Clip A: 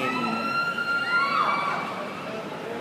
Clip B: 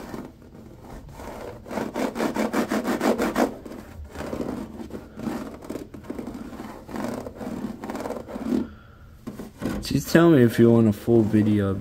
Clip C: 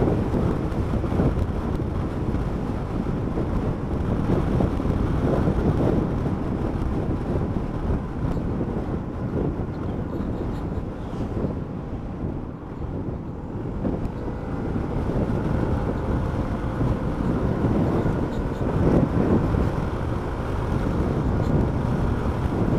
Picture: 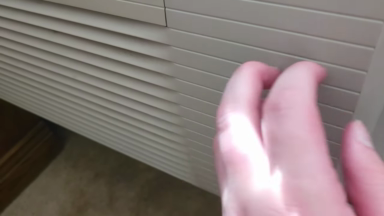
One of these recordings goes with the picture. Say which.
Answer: B